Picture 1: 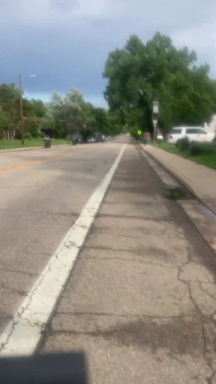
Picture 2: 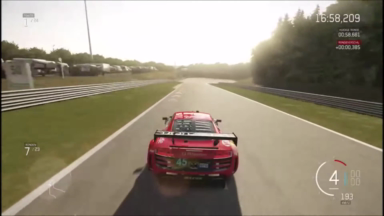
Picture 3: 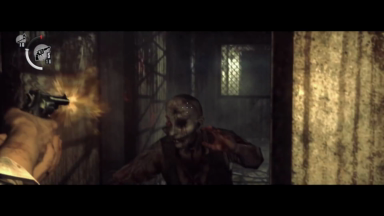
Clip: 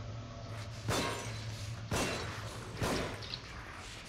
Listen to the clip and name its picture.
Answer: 3